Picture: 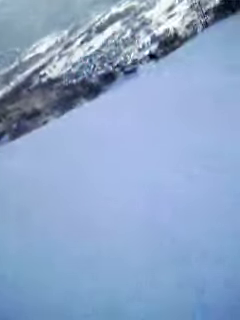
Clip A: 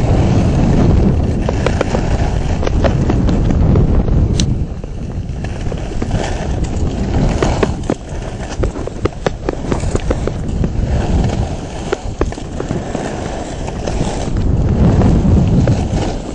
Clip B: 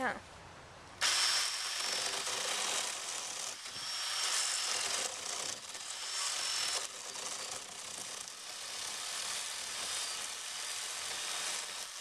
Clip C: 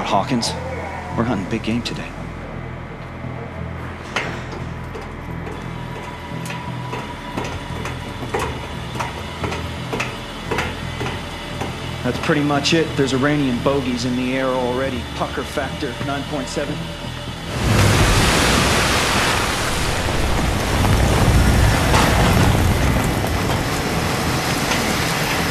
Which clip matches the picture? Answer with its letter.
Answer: A